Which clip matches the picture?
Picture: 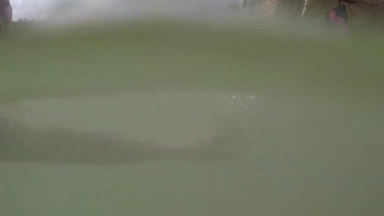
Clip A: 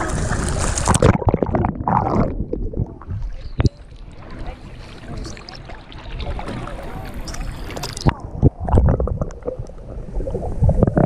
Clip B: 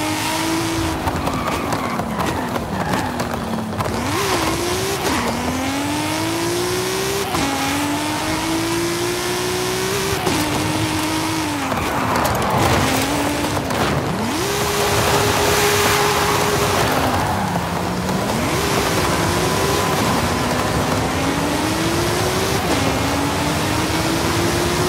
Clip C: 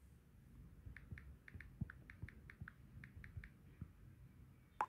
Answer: A